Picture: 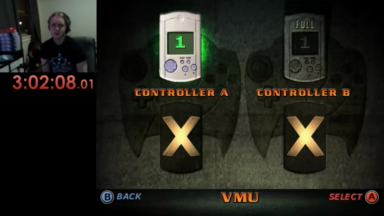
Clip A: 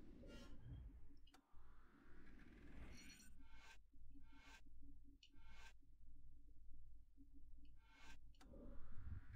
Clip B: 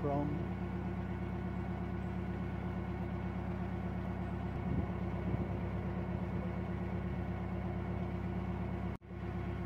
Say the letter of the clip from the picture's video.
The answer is A